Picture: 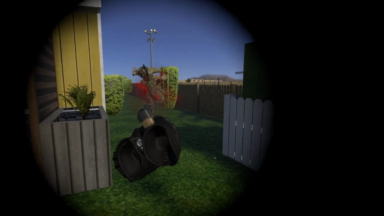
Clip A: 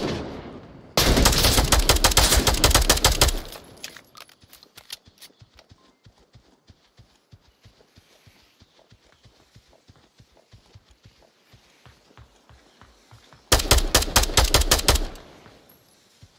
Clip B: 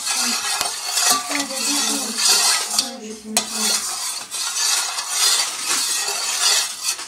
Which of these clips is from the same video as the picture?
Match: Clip A